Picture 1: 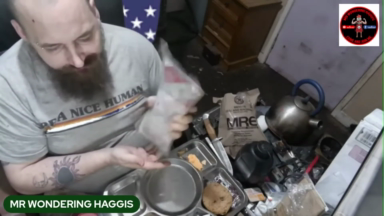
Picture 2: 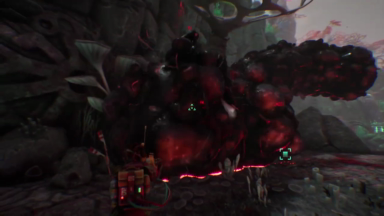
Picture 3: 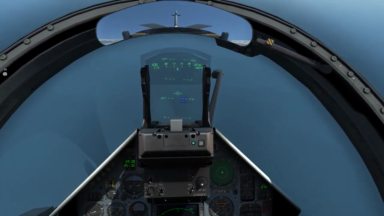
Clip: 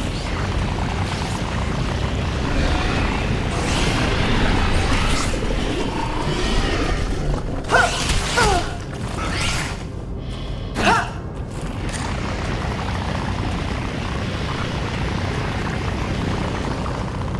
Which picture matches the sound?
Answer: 2